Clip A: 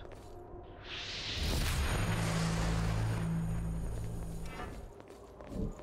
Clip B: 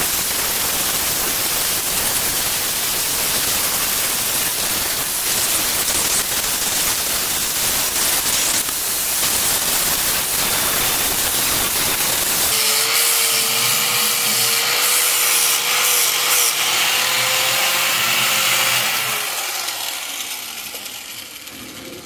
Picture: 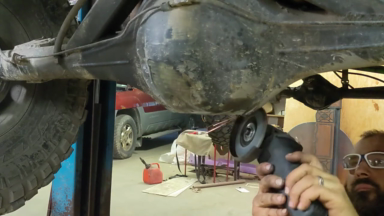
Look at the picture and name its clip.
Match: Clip B